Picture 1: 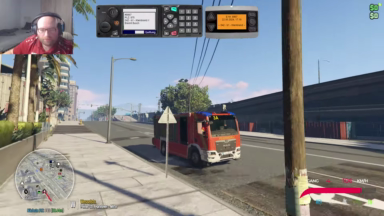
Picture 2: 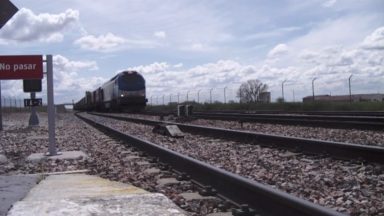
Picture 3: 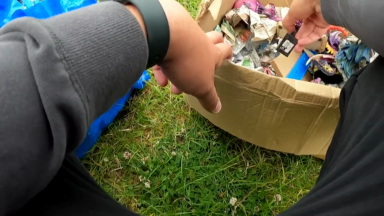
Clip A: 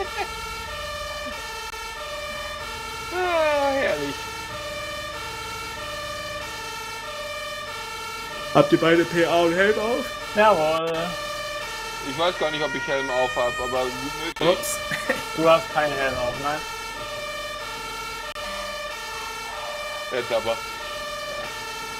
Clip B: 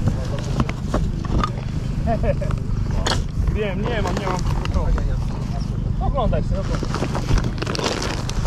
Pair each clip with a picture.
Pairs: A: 1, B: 3